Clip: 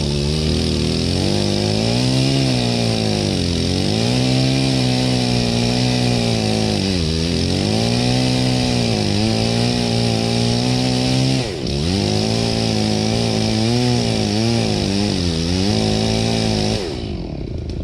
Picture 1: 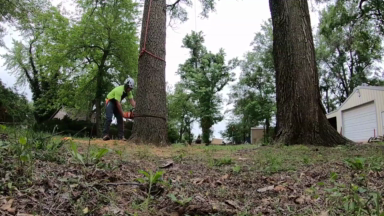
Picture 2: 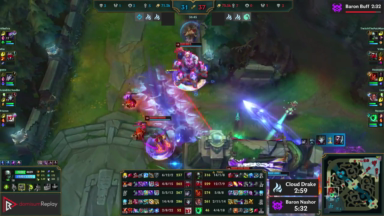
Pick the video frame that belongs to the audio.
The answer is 1